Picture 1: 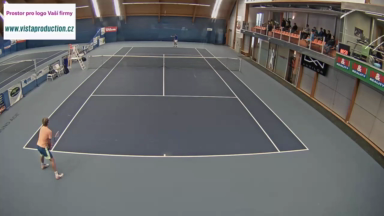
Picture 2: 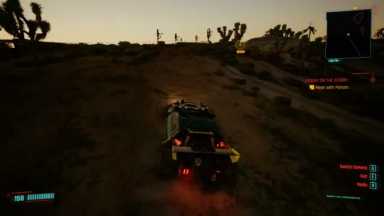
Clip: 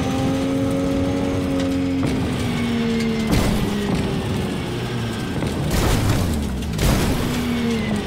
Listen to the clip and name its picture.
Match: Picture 2